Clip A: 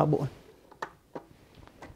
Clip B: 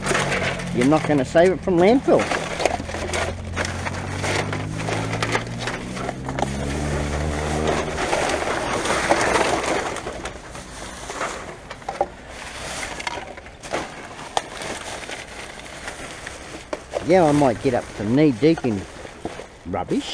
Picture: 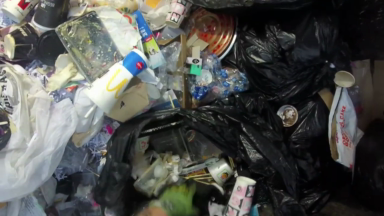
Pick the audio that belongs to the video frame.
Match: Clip B